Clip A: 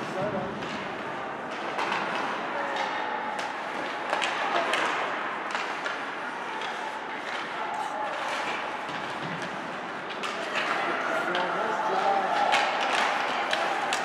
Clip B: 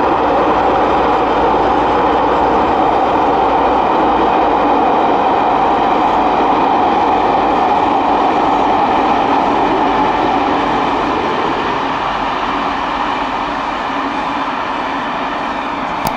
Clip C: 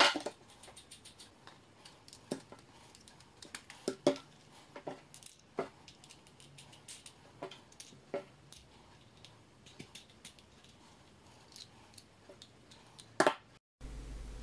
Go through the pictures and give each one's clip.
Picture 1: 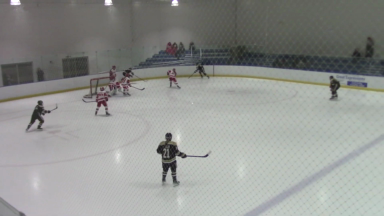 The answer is A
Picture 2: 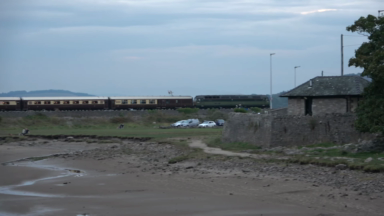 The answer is B